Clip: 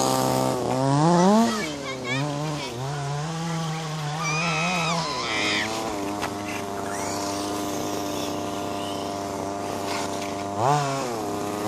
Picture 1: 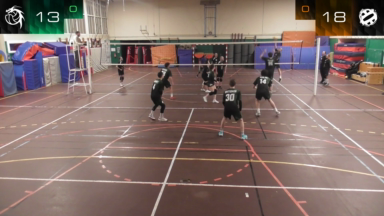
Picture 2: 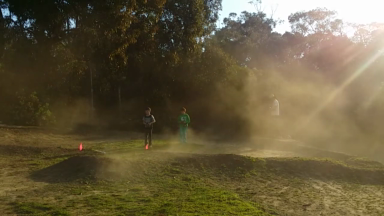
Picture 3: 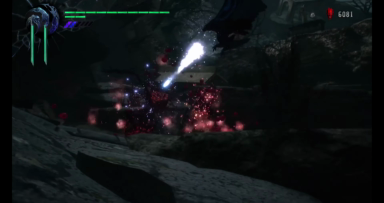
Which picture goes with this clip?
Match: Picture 2